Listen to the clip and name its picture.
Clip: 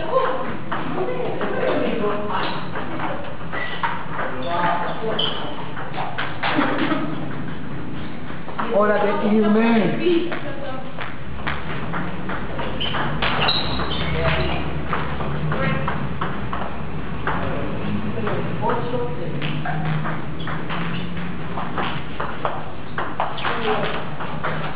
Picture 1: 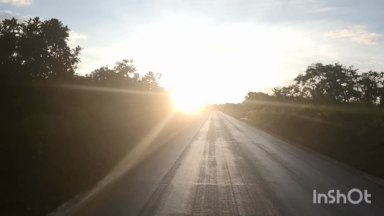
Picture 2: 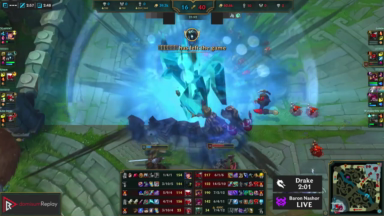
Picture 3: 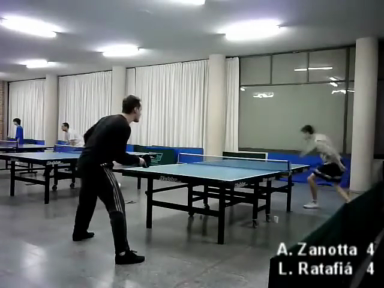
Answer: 3